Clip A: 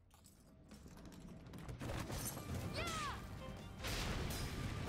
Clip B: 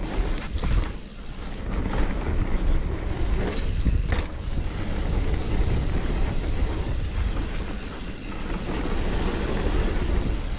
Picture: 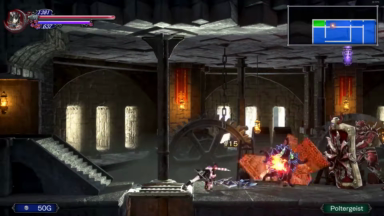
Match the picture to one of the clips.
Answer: A